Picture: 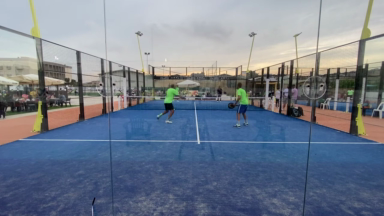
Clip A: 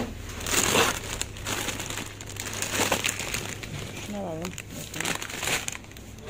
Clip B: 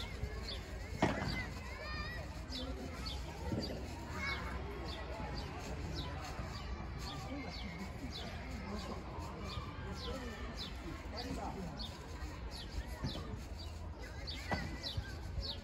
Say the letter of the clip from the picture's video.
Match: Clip B